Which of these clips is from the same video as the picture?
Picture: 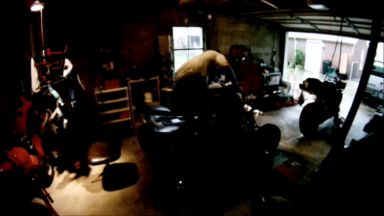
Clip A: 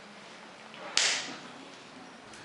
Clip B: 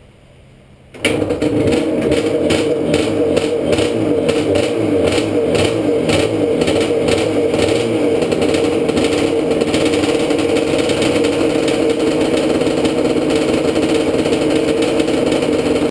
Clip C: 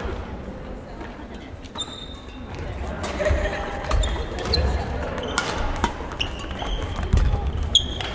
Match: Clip B